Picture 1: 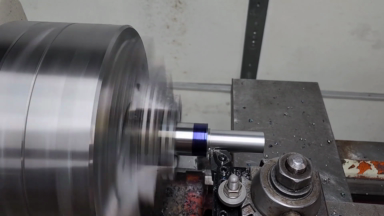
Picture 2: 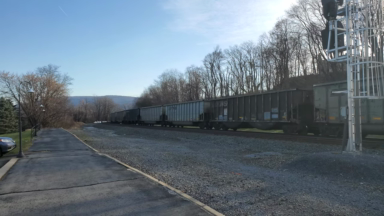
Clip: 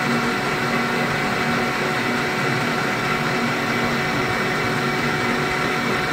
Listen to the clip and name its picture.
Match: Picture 1